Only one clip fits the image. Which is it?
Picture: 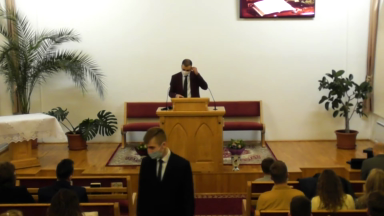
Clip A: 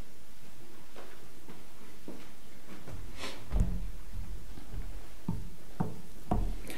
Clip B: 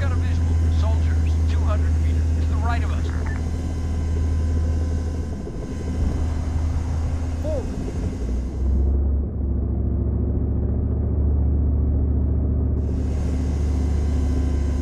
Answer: A